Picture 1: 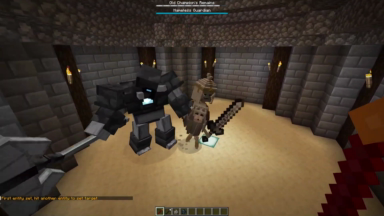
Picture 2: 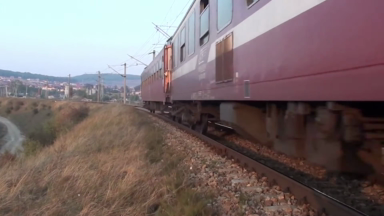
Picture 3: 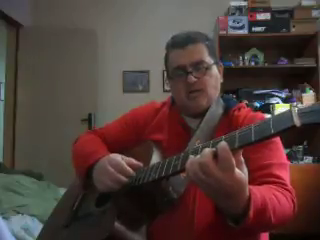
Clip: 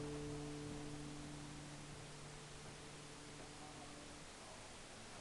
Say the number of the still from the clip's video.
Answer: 3